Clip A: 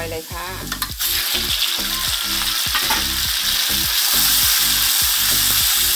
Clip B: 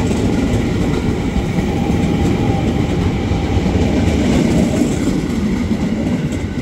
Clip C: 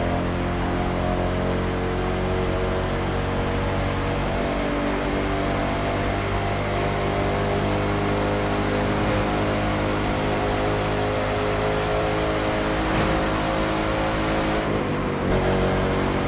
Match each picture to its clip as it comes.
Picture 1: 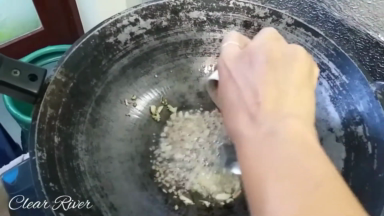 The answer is A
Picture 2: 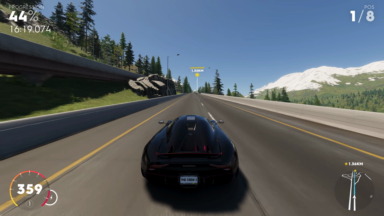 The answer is C